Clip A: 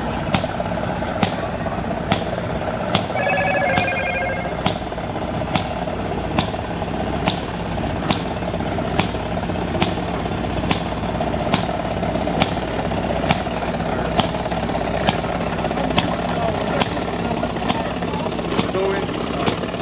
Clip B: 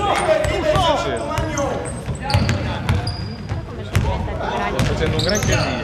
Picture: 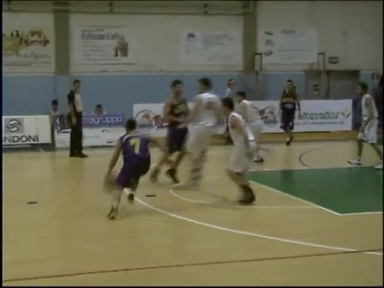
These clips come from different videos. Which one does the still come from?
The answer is B